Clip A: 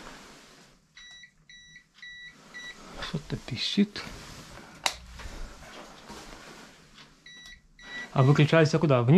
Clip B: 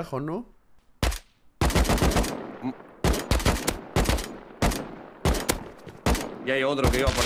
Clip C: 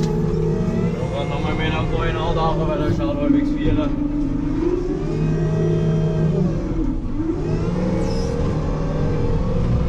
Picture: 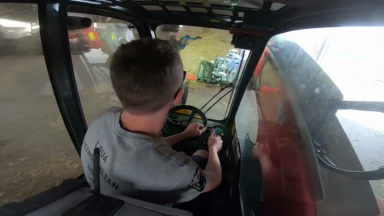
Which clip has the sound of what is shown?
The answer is C